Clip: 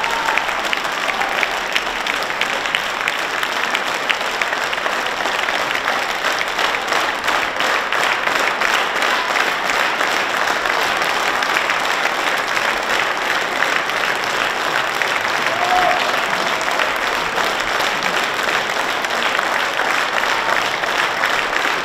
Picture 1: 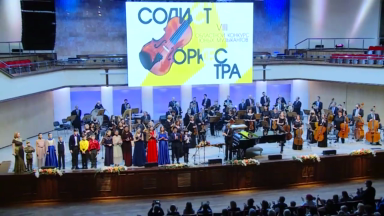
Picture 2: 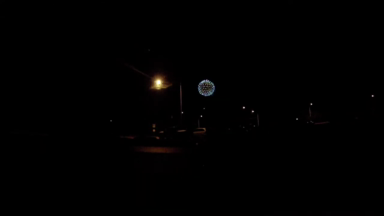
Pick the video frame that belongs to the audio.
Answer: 1